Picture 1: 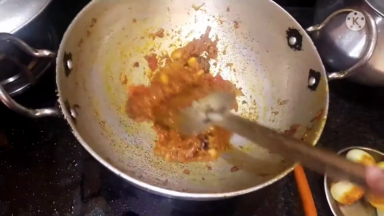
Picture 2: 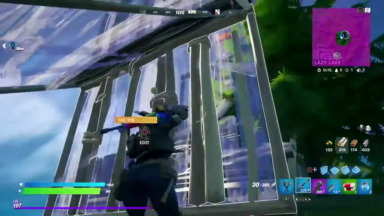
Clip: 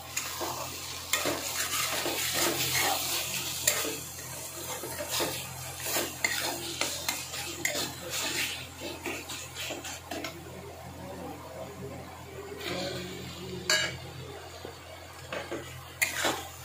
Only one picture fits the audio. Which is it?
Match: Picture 1